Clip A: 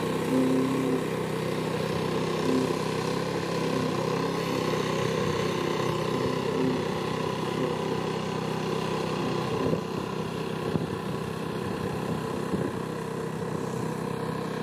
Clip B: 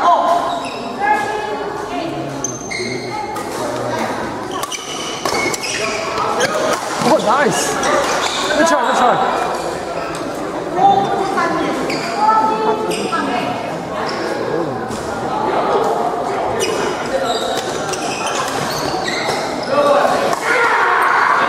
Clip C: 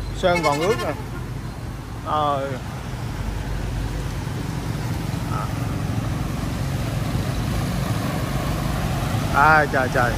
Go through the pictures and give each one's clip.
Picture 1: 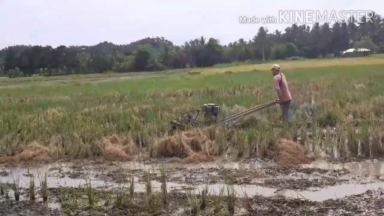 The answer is A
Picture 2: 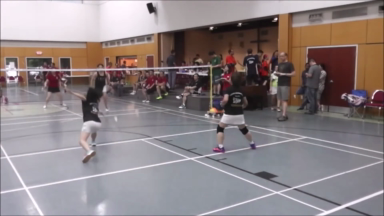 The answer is B